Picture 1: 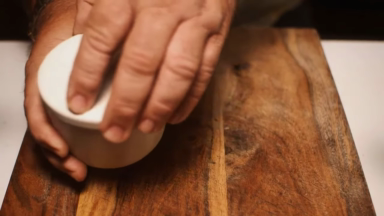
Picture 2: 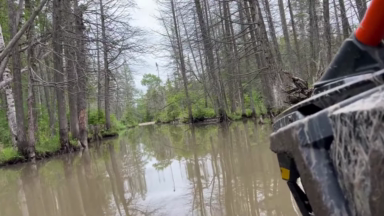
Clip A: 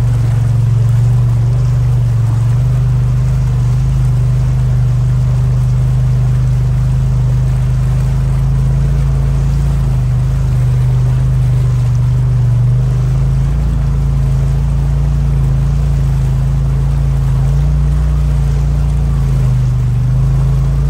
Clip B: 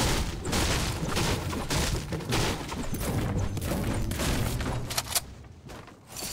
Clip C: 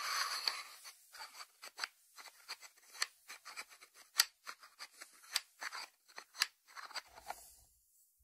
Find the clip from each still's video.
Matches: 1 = C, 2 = A